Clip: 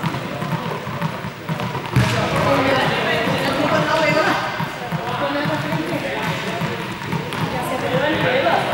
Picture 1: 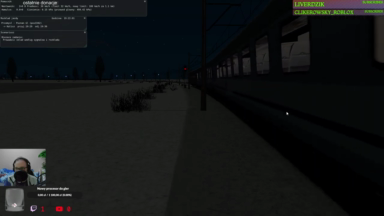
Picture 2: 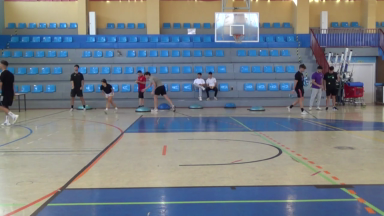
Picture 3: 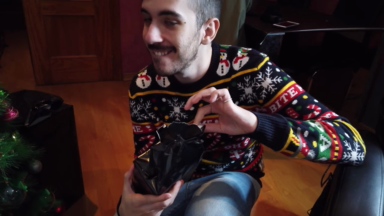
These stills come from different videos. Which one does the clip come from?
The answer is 2